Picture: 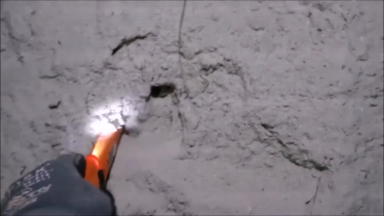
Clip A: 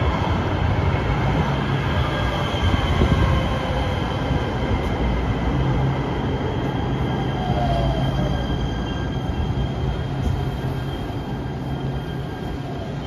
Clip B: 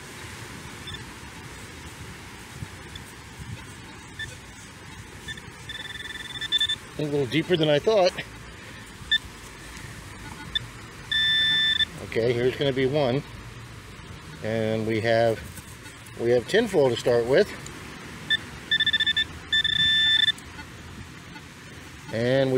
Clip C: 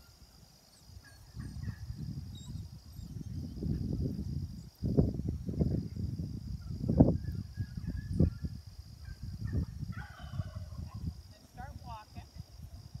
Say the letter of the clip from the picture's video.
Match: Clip B